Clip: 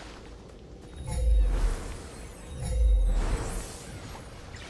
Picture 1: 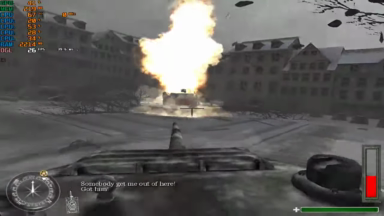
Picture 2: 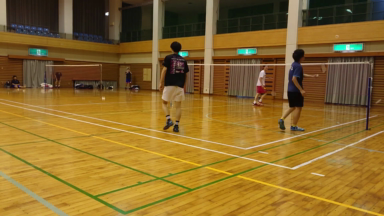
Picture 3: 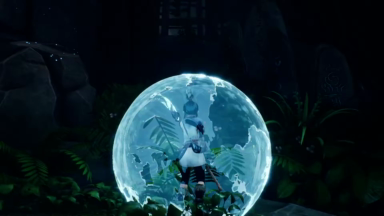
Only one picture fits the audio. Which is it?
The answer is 3